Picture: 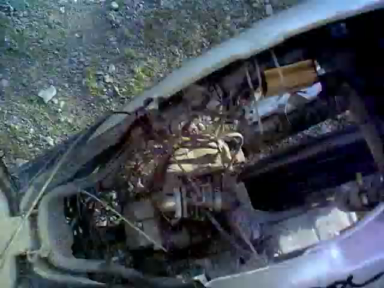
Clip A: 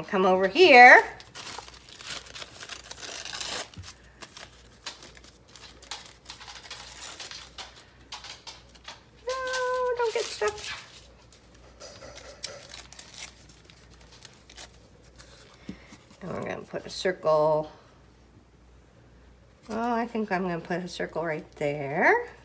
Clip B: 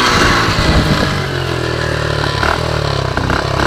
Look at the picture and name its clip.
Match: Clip B